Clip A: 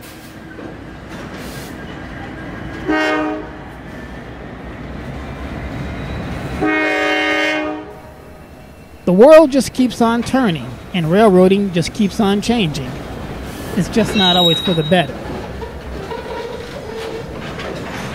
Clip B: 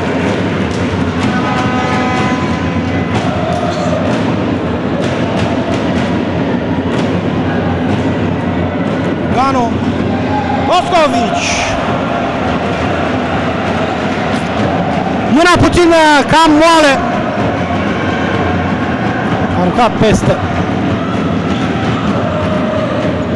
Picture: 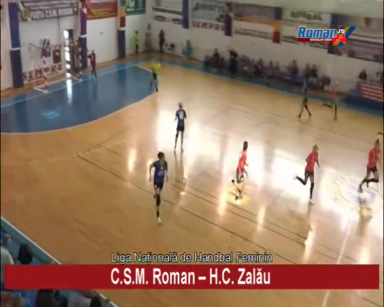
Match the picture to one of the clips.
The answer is B